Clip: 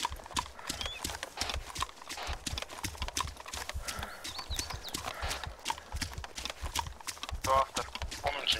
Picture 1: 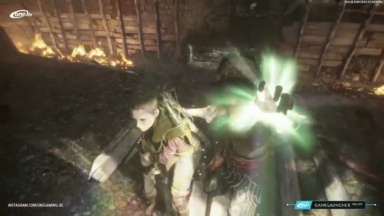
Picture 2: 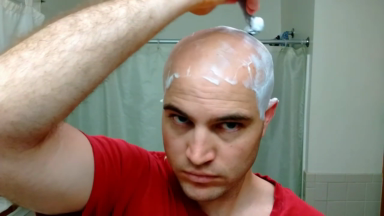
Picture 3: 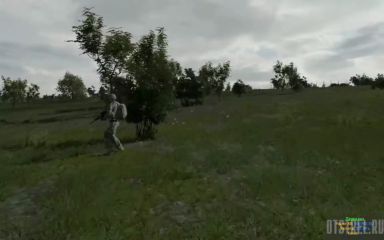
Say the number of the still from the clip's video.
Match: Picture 3